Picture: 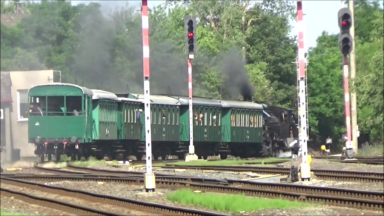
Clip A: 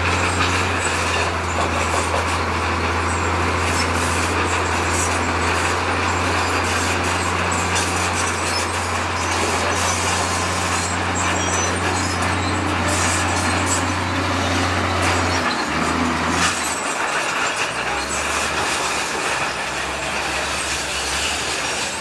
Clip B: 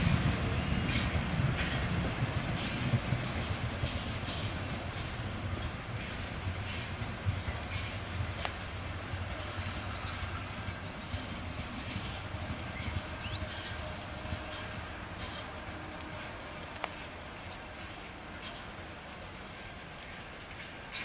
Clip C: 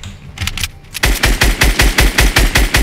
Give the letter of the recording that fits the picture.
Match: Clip B